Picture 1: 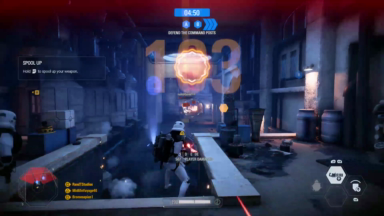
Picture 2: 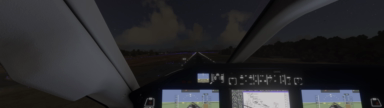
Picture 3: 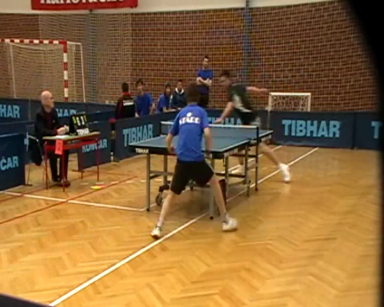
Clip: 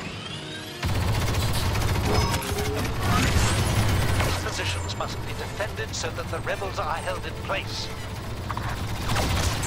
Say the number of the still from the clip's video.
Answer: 1